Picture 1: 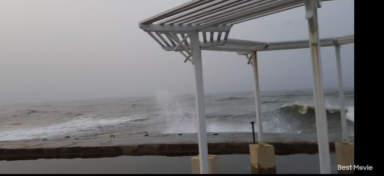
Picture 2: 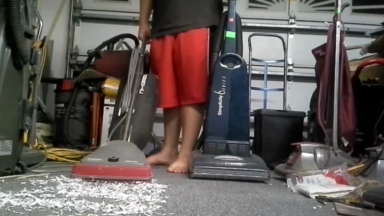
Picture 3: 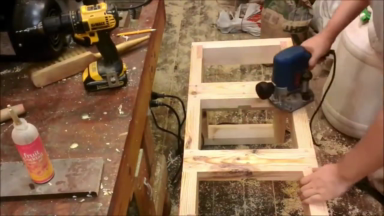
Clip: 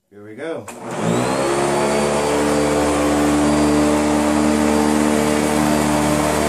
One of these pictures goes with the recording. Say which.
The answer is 2